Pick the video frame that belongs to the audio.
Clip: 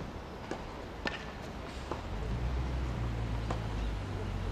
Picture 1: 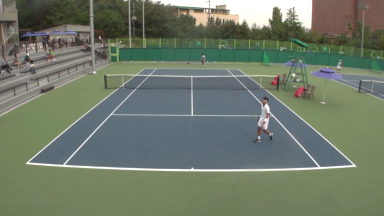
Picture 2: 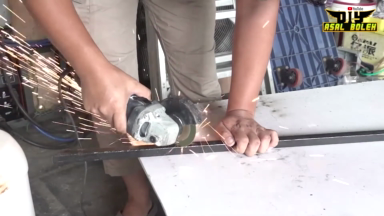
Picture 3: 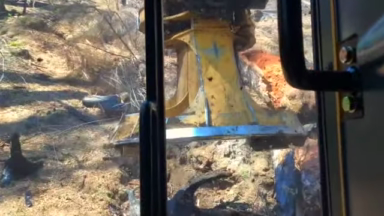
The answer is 1